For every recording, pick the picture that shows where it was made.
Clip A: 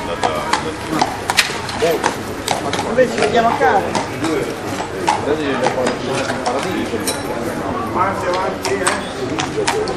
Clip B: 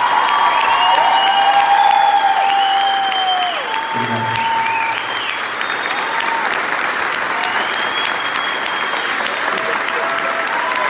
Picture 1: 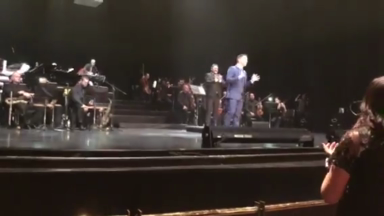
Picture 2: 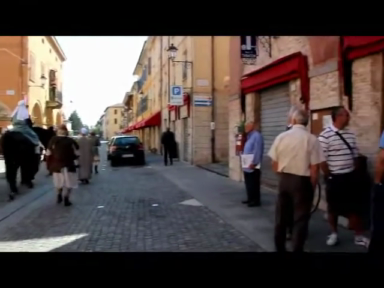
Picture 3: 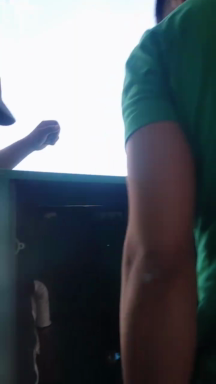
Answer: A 2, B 1